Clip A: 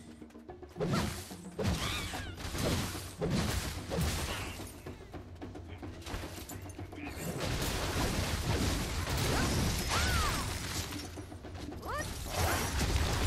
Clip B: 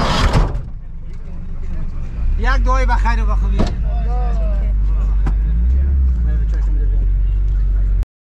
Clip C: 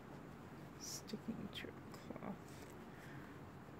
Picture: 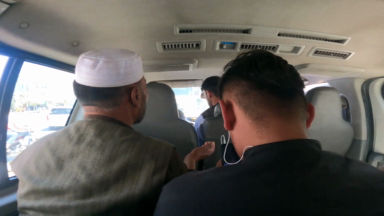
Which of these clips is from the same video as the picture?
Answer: B